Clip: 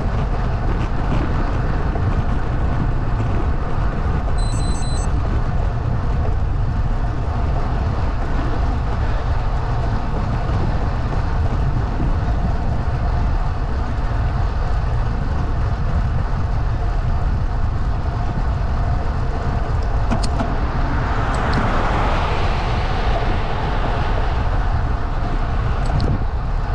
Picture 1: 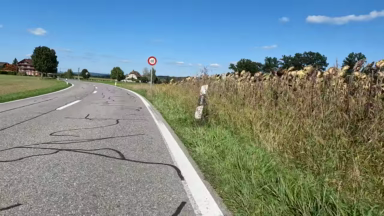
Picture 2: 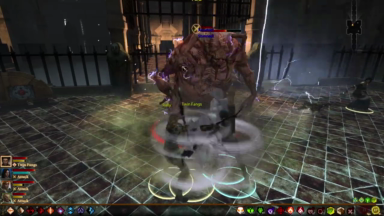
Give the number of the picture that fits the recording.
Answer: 1